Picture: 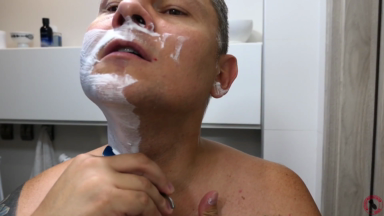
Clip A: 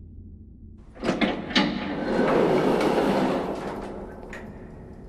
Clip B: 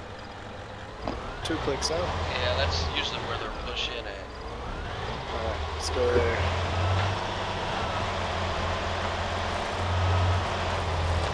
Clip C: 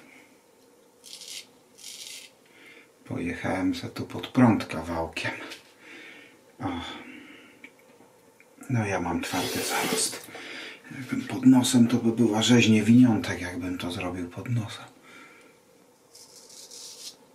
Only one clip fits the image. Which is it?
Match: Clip C